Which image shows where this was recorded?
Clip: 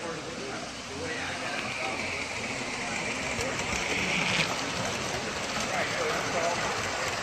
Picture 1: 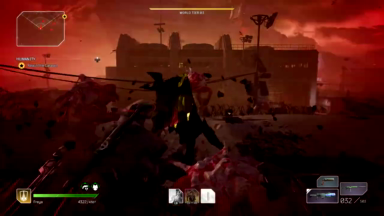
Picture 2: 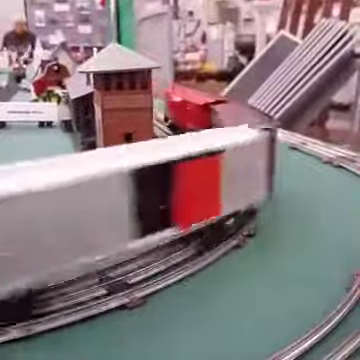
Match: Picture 2